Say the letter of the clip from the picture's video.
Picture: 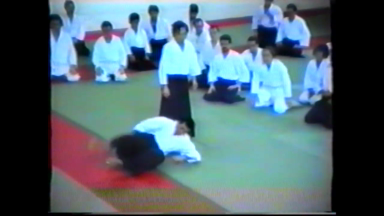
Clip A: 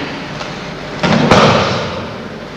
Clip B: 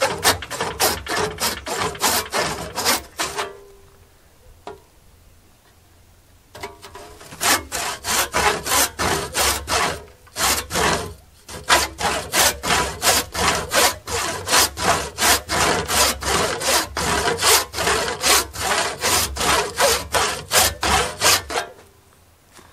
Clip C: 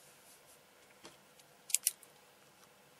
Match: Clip A